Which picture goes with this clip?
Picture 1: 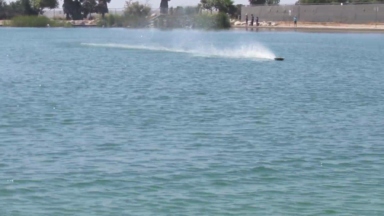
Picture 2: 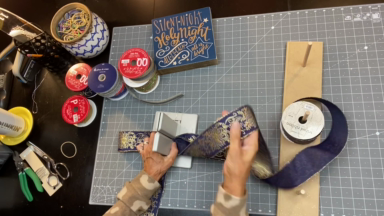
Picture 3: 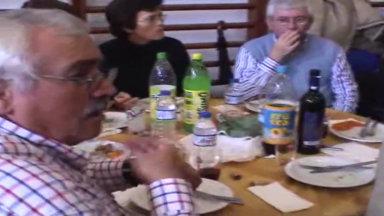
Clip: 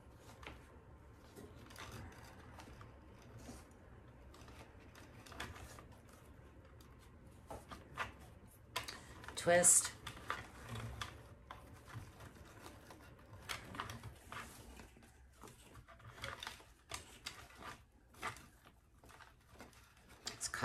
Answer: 2